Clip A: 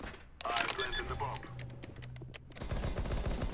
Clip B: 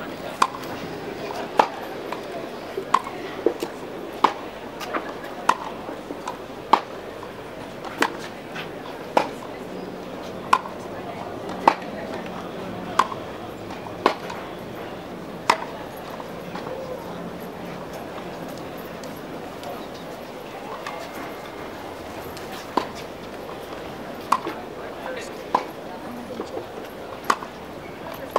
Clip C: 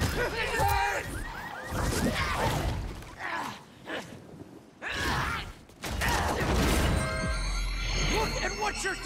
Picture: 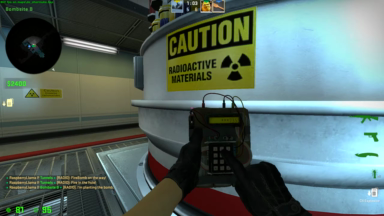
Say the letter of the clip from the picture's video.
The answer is A